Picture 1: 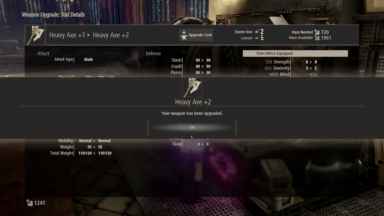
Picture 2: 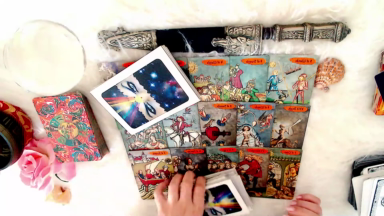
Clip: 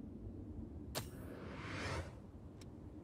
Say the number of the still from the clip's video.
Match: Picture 1